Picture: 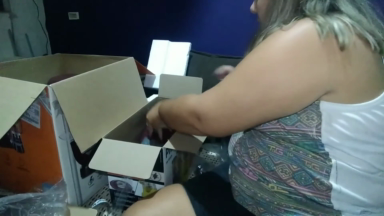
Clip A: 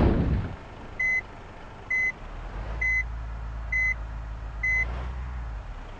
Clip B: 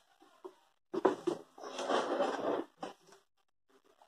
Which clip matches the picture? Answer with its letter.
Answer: B